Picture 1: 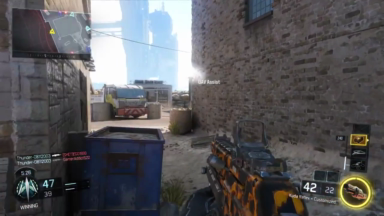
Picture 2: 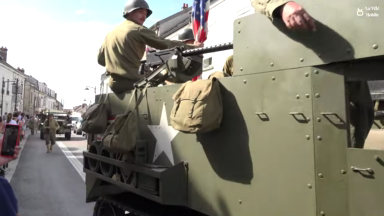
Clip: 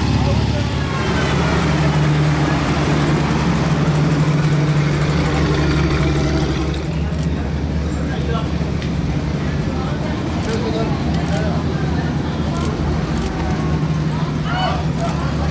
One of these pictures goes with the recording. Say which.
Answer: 2